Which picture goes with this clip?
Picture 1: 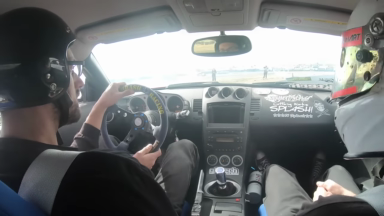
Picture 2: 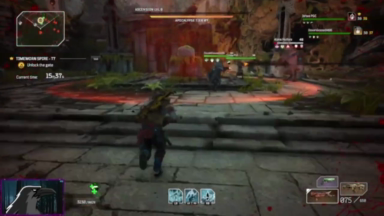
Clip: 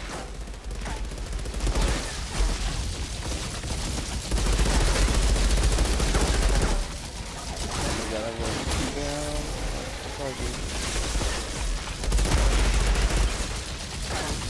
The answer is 2